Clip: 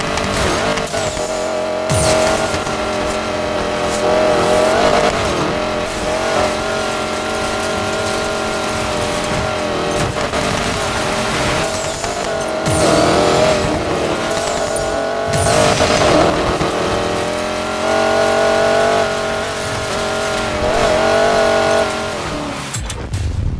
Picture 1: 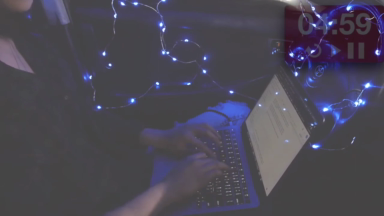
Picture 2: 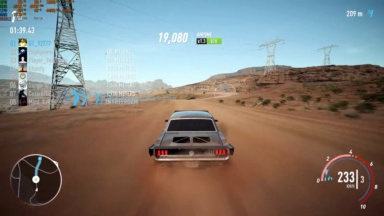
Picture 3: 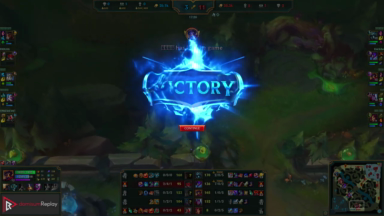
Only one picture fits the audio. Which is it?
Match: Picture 2